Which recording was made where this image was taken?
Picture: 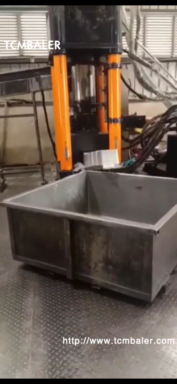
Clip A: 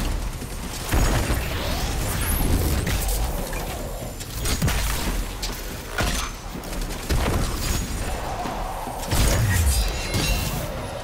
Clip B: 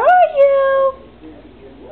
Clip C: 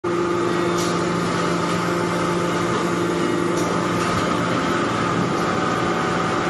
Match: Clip C